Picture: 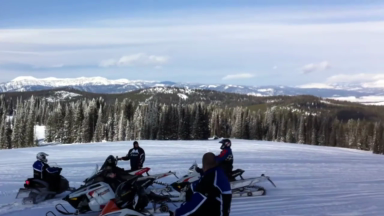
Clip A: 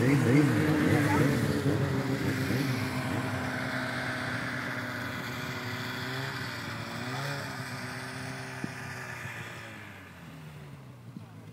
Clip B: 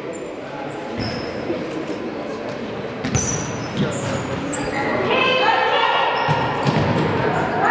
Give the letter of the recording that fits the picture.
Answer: A